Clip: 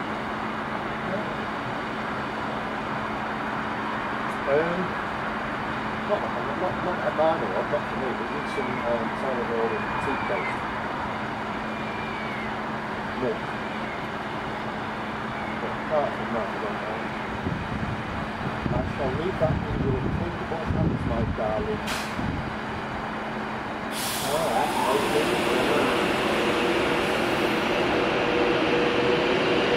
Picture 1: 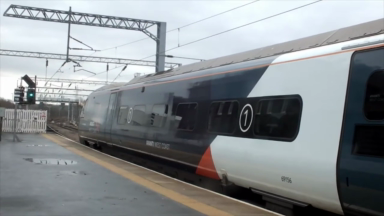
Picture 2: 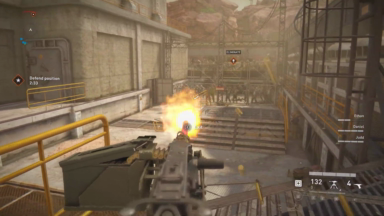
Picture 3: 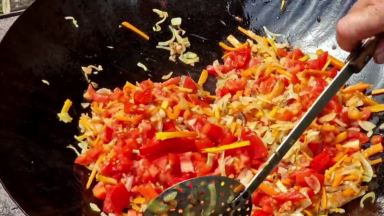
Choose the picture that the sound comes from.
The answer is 1